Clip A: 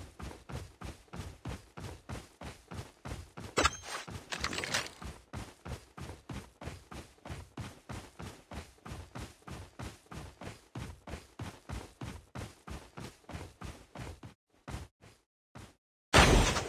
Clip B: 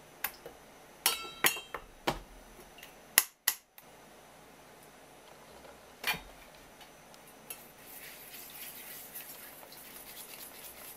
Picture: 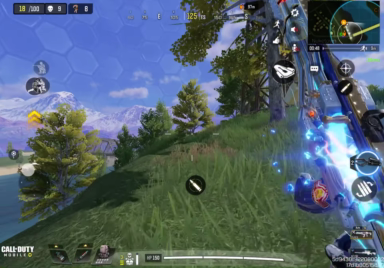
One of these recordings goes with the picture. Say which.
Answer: A